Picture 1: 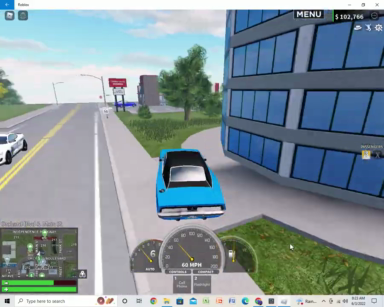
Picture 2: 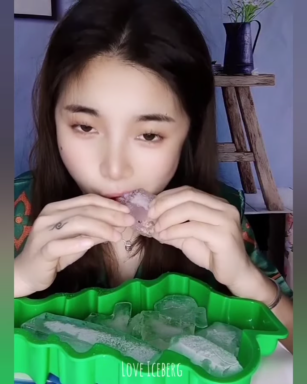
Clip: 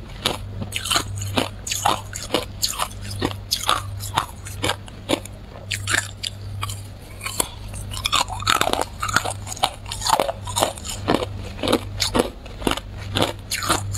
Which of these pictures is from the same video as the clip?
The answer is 2